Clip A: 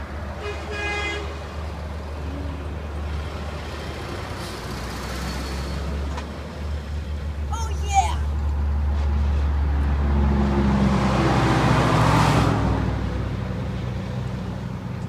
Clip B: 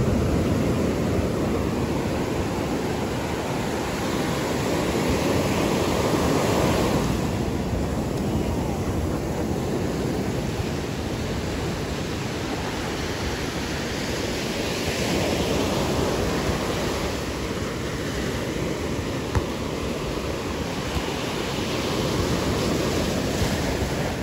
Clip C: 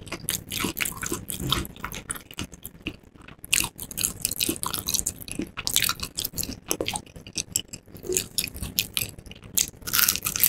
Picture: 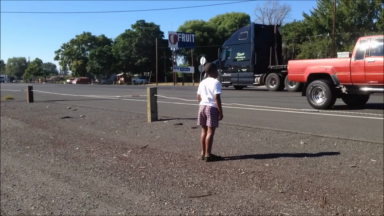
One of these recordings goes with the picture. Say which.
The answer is A